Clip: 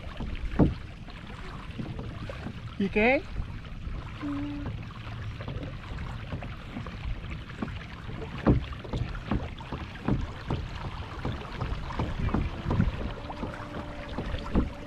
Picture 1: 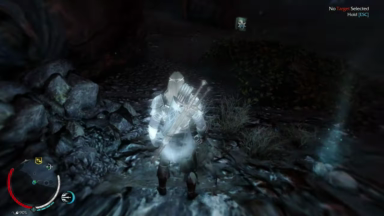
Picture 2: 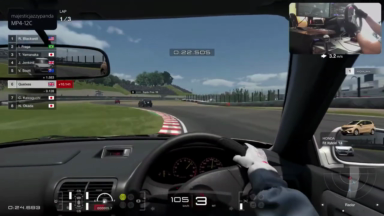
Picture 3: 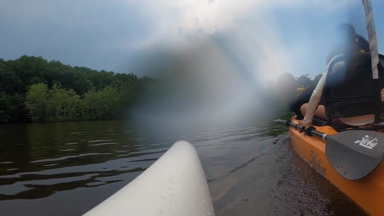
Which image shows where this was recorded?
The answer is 3